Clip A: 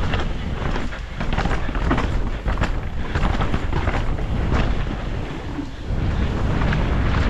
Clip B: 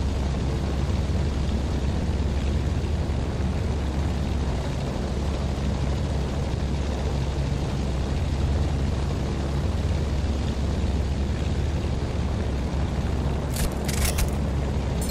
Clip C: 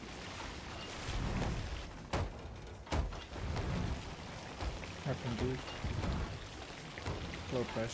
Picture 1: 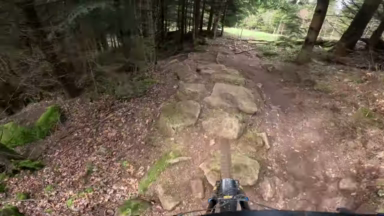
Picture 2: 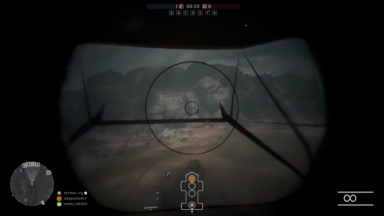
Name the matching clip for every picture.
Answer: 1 A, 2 B